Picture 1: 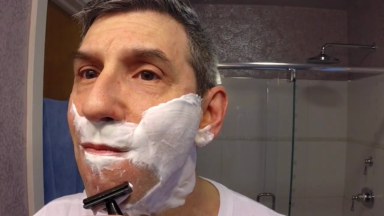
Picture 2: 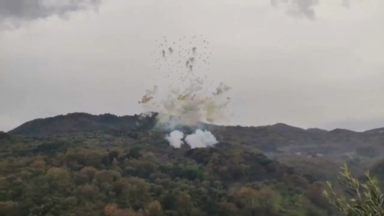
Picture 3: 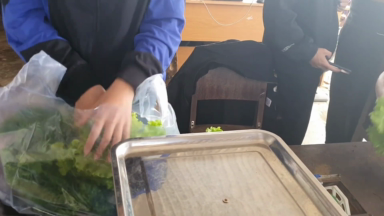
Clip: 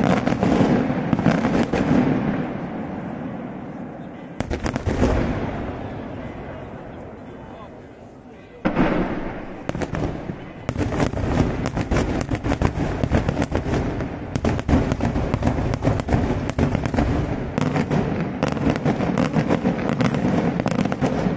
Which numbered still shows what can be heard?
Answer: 2